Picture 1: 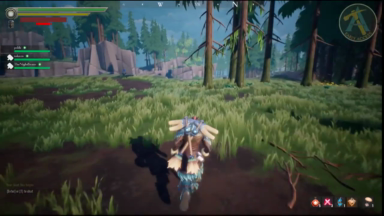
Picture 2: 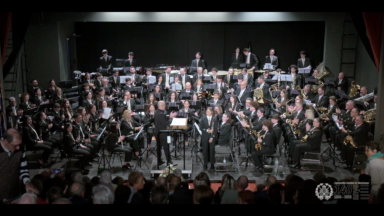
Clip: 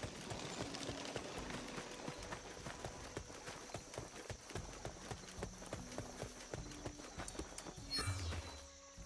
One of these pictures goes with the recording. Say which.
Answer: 1